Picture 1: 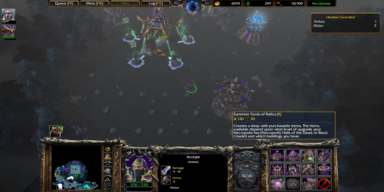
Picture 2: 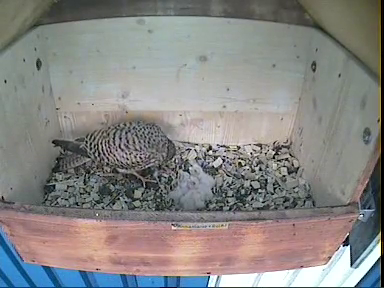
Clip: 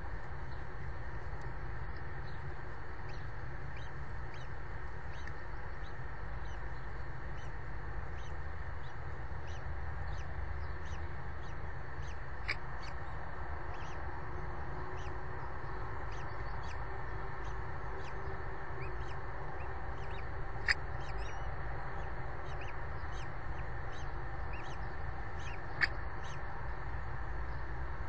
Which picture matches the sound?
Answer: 2